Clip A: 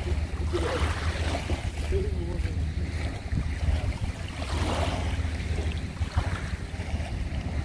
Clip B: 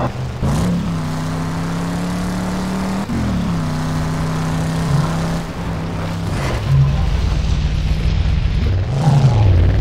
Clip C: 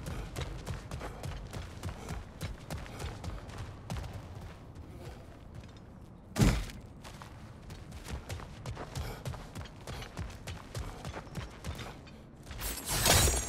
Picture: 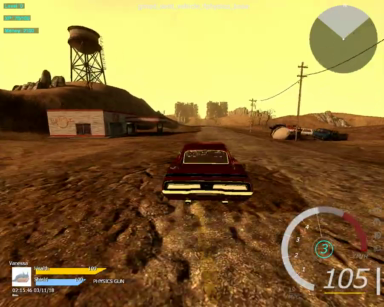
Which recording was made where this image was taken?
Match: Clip B